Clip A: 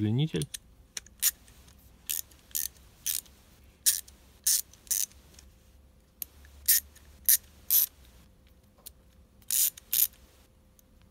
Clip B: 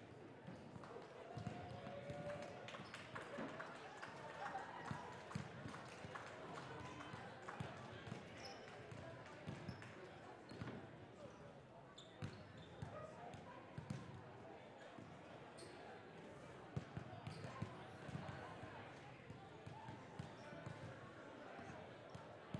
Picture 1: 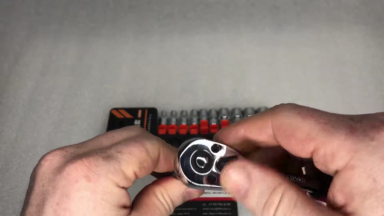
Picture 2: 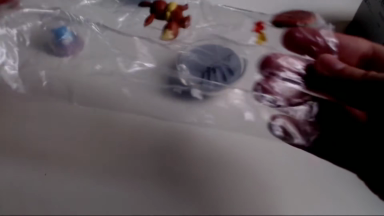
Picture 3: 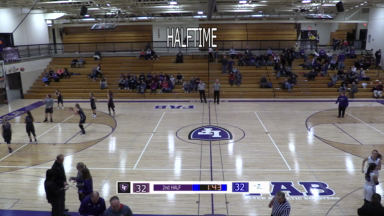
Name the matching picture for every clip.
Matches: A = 1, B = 3